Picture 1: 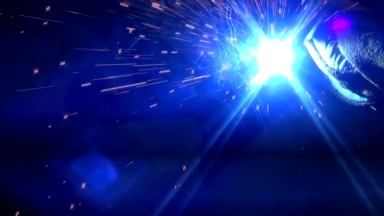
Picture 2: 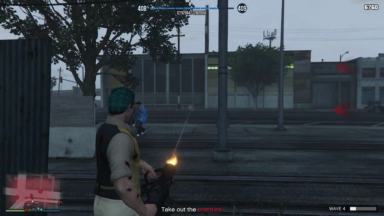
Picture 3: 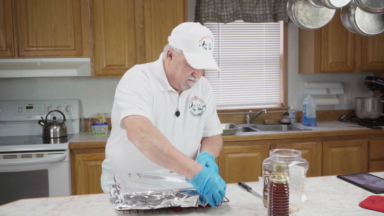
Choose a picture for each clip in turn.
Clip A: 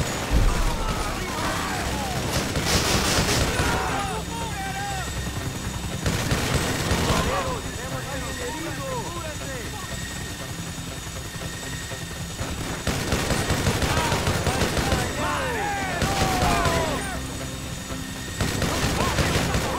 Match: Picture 2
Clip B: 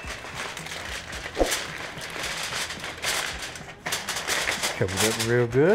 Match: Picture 3